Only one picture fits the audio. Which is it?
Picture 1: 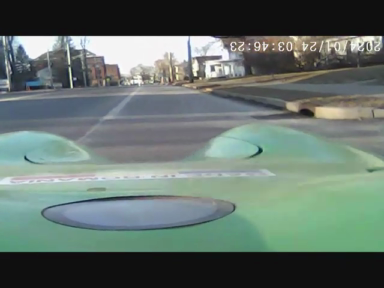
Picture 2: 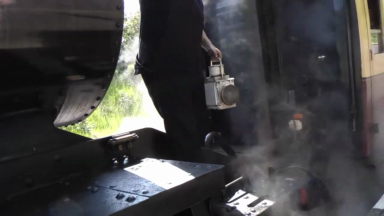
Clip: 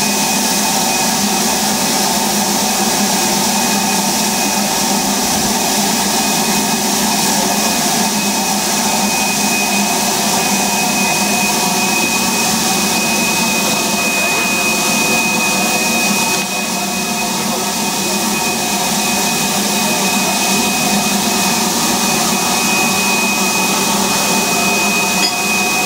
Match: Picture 2